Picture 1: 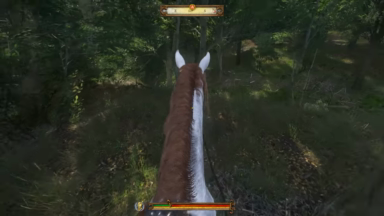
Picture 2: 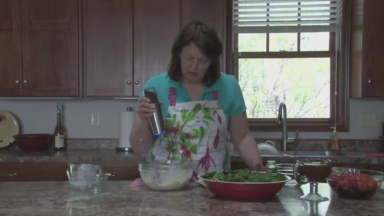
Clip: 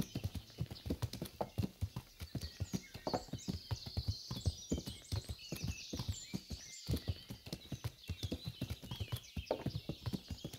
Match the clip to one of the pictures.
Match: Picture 1